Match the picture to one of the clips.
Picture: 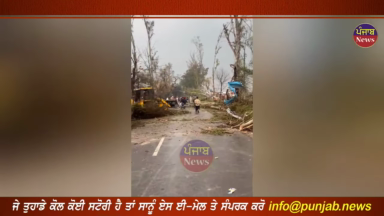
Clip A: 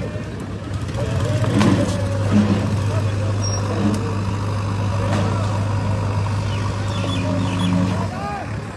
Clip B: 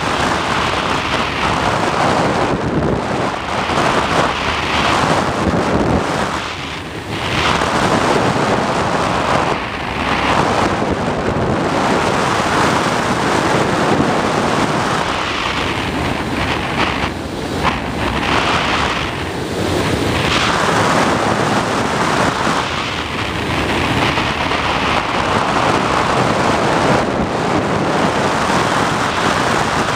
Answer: A